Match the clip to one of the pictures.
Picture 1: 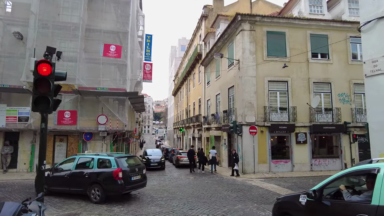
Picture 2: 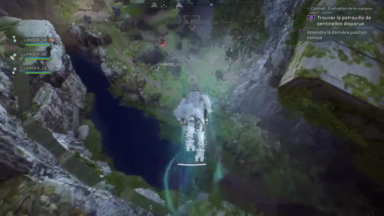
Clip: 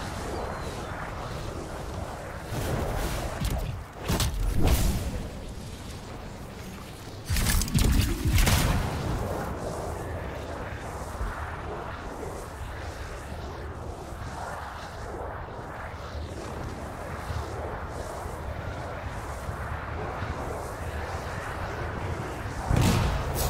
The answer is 2